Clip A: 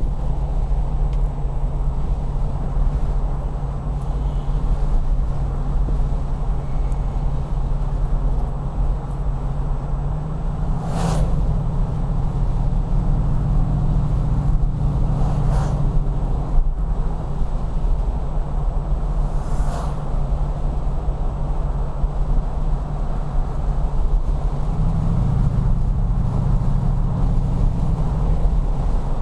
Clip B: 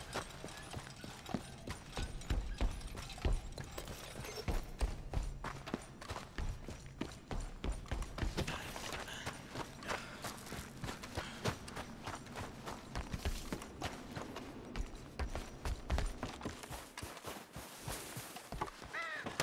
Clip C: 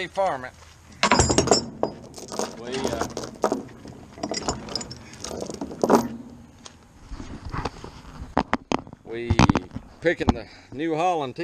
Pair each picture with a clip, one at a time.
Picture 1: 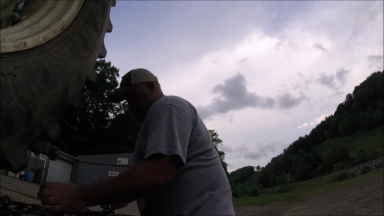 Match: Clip C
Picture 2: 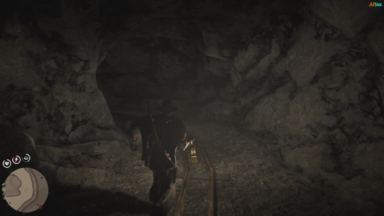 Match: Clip B